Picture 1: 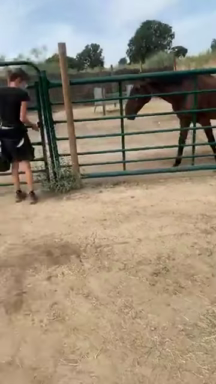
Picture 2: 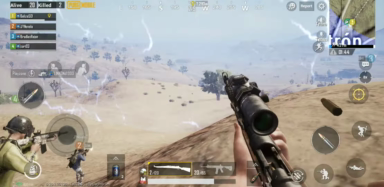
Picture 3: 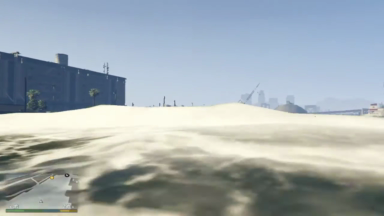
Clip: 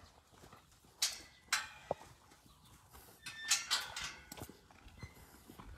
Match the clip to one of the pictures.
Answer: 1